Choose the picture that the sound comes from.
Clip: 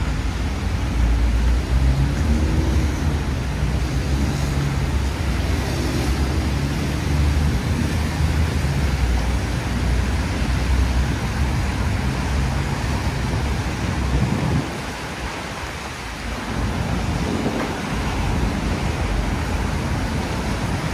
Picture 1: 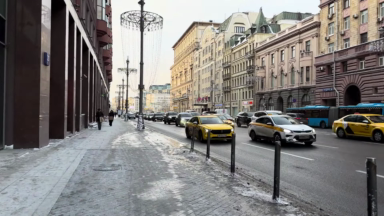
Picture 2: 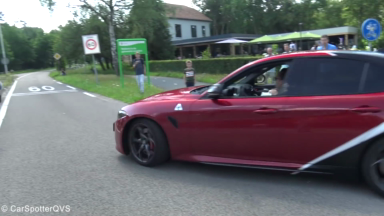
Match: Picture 1